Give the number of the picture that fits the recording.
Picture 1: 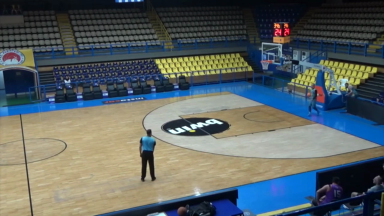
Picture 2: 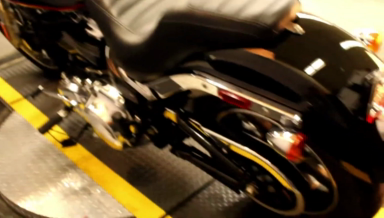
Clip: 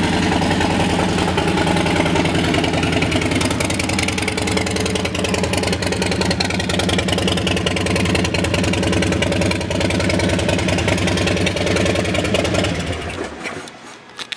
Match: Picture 2